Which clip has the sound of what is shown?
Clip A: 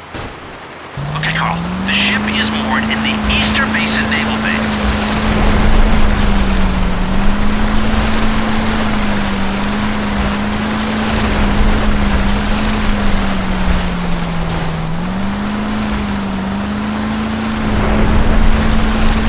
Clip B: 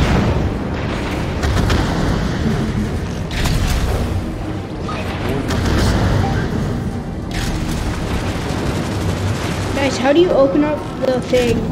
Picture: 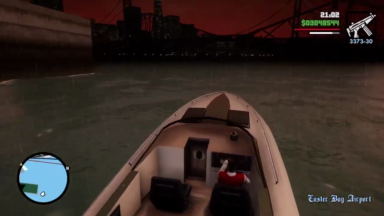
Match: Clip A